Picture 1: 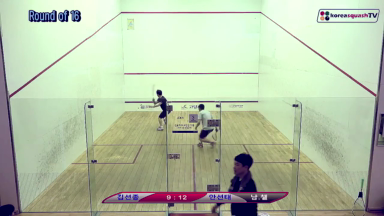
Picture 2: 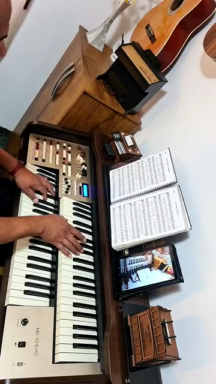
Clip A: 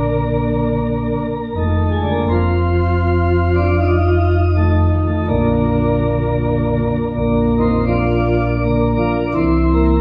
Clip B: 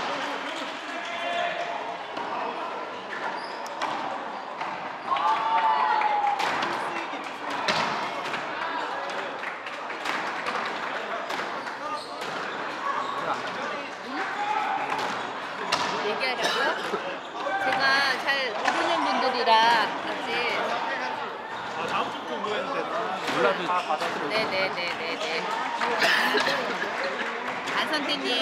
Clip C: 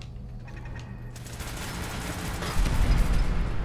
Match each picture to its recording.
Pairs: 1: B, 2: A